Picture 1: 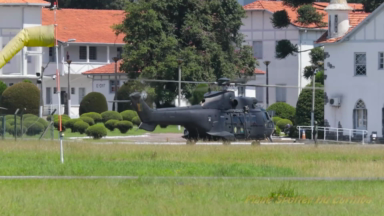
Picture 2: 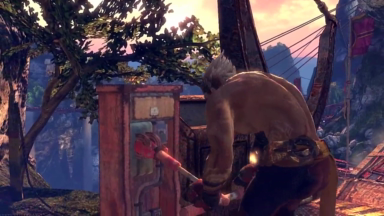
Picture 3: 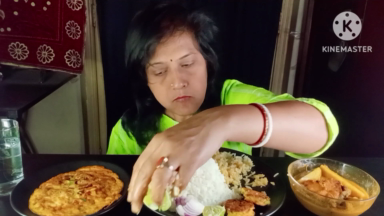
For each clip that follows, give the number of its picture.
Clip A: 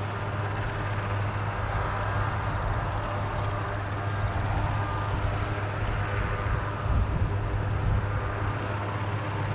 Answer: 1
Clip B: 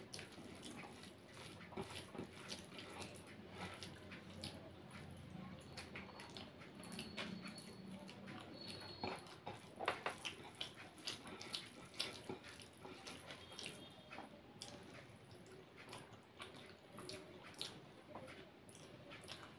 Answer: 3